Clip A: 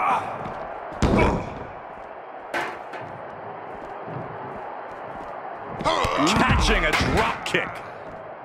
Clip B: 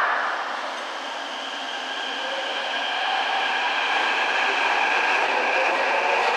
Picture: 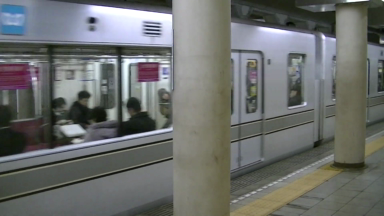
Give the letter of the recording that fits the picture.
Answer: B